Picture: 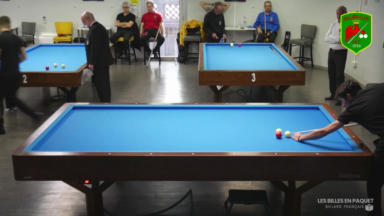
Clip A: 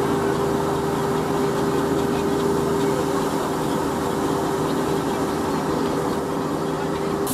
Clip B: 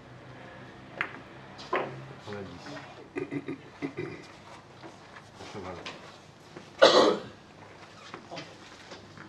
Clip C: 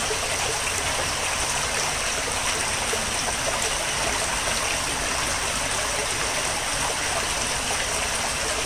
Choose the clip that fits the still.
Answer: B